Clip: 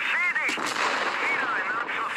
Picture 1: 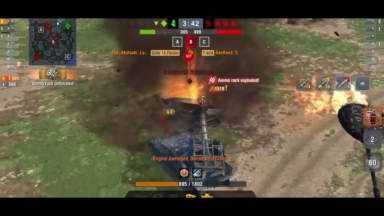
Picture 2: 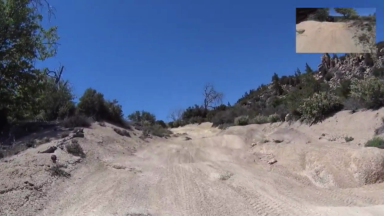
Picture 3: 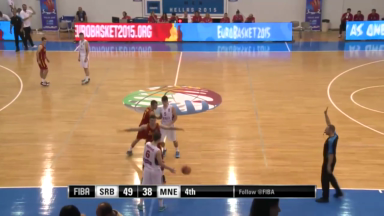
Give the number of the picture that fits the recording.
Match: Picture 1